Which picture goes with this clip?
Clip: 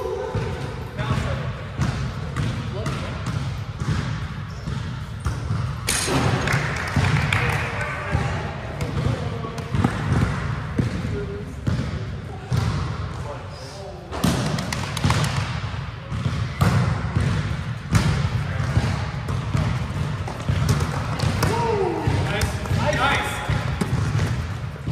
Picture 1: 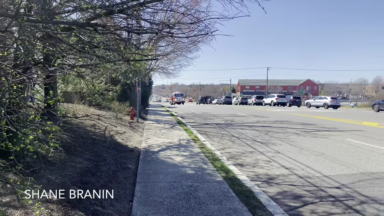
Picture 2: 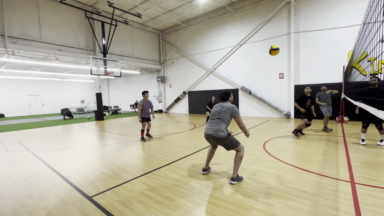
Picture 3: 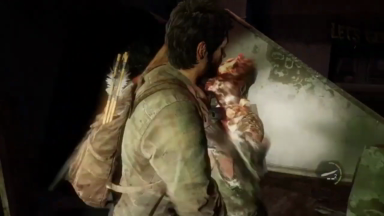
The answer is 2